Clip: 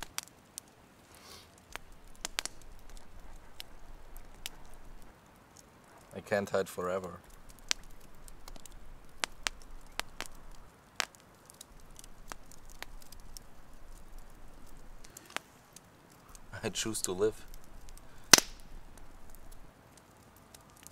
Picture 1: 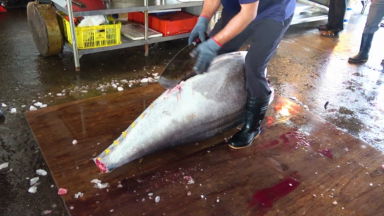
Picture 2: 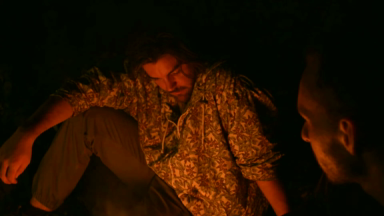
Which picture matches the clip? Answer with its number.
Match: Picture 2